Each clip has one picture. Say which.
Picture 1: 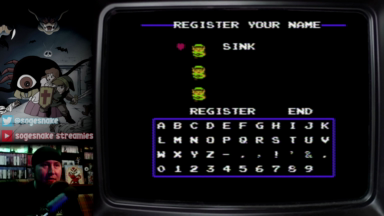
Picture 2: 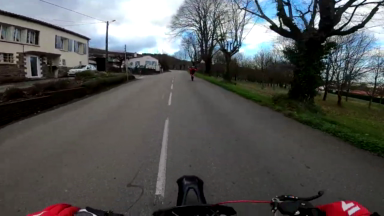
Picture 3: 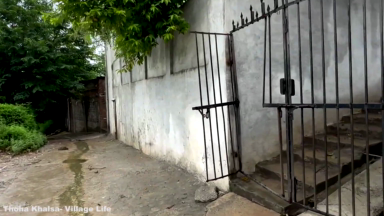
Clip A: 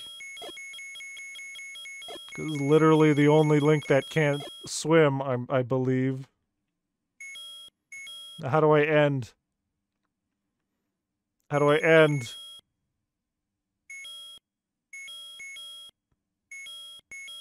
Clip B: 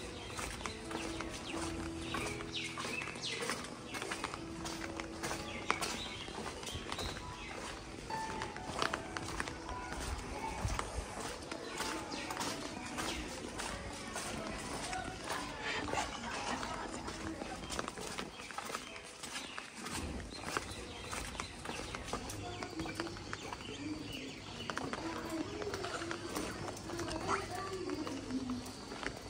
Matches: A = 1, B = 3